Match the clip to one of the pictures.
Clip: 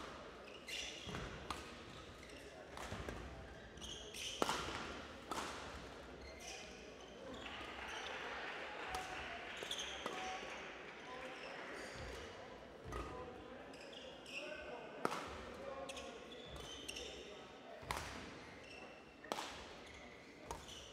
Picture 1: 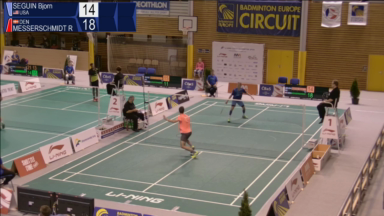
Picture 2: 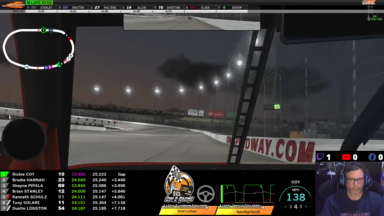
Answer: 1